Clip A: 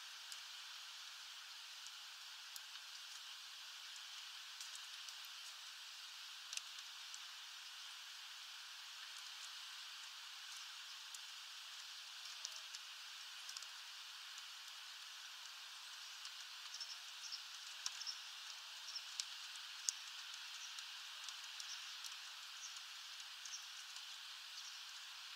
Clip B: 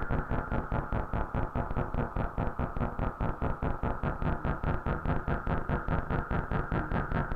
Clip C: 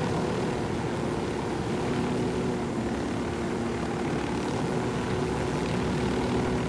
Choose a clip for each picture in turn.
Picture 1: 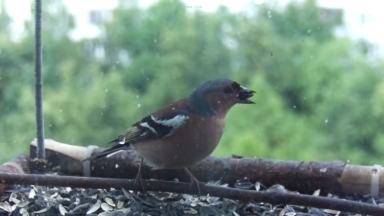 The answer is A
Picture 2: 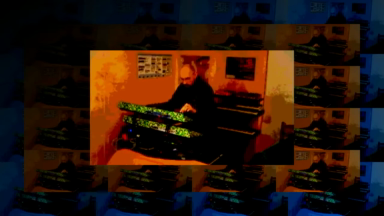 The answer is B